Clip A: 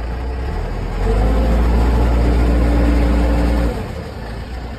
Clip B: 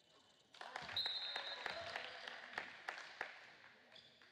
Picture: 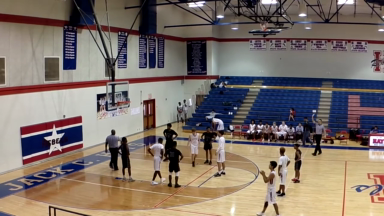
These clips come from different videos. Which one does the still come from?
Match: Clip B